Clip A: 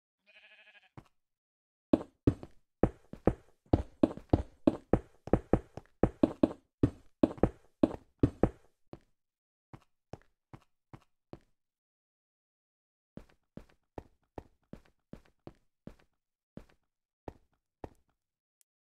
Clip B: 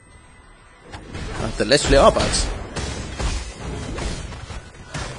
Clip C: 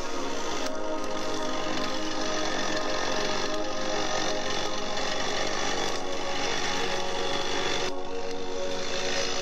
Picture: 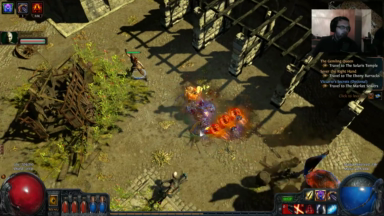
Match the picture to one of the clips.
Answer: B